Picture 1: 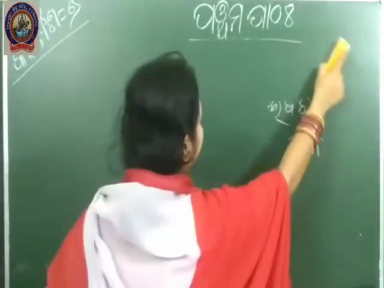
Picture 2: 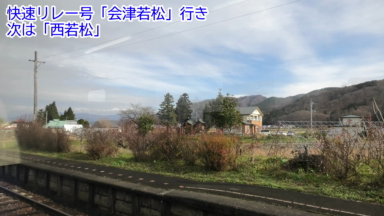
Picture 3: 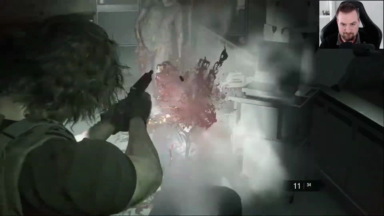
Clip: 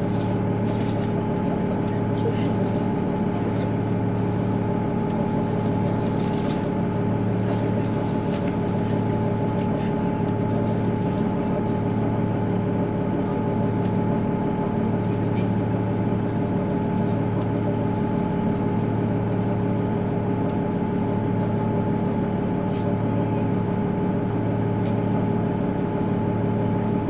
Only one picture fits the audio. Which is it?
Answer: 2